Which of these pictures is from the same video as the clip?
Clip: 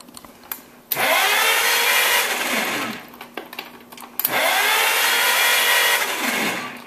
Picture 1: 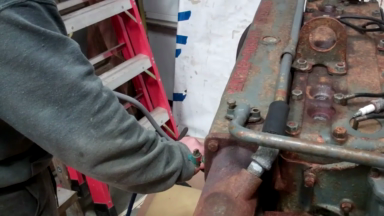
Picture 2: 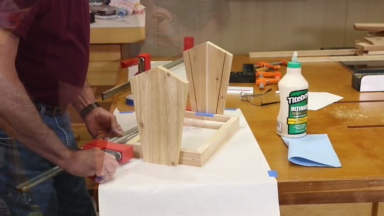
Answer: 1